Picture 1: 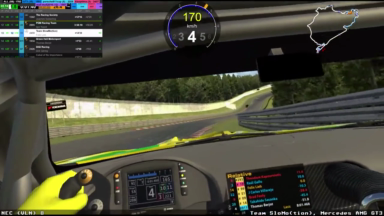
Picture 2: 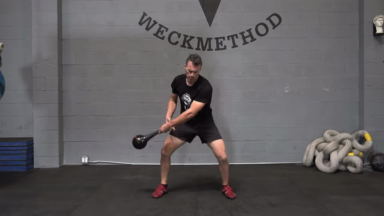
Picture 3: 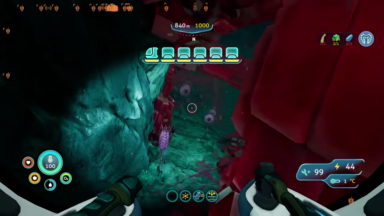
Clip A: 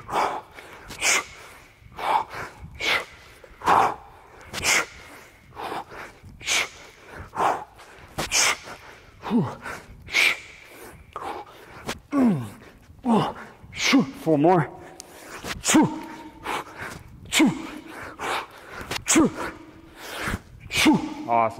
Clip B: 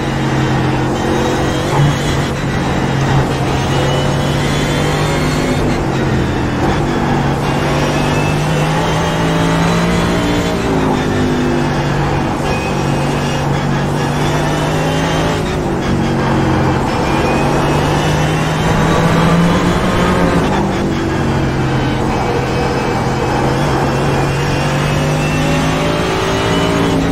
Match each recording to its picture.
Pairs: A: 2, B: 1